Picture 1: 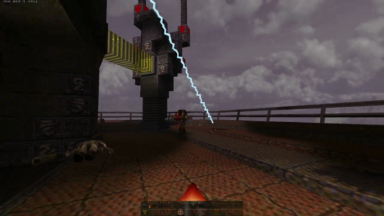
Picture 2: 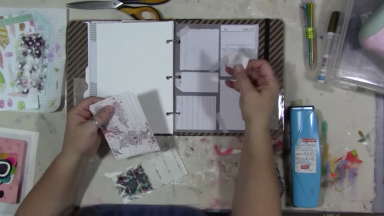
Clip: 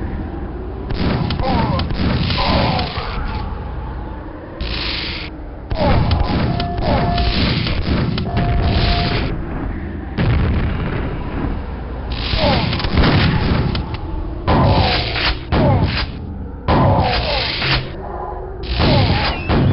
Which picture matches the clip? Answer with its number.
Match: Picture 1